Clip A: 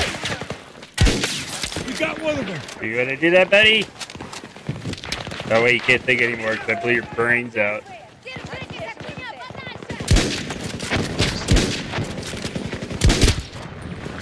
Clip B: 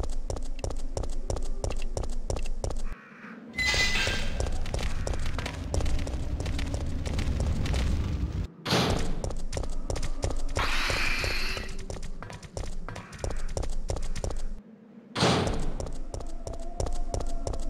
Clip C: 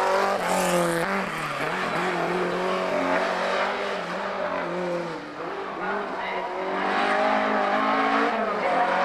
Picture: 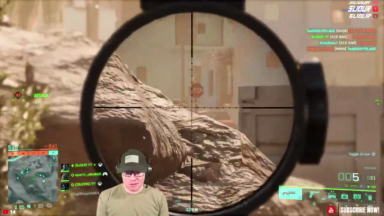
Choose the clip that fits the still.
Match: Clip A